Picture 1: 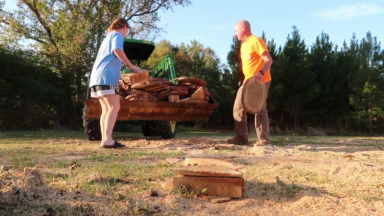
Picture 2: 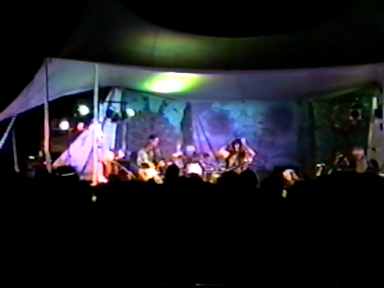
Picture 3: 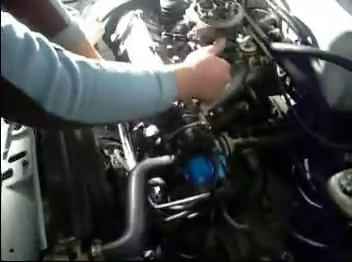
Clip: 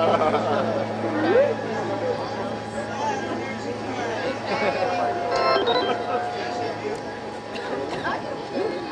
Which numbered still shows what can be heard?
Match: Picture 2